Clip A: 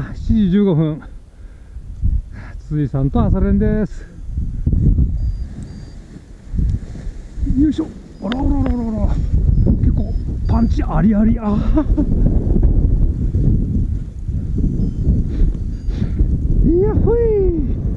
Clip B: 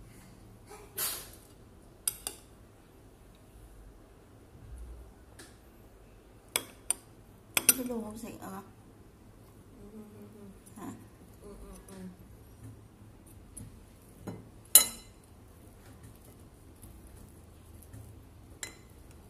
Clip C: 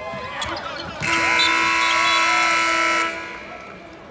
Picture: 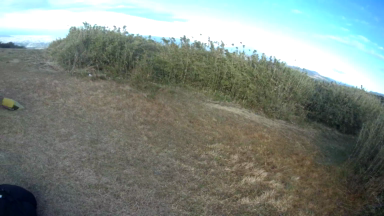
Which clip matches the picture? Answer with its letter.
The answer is A